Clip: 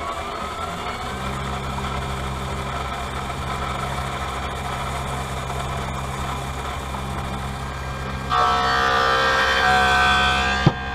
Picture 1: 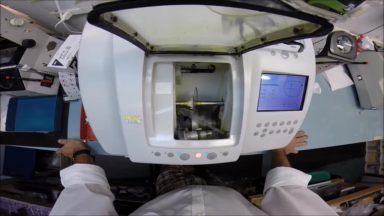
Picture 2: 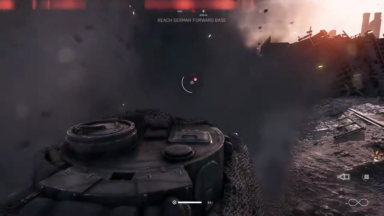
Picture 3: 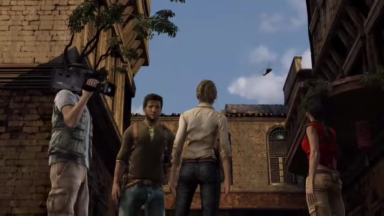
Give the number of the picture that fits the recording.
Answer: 1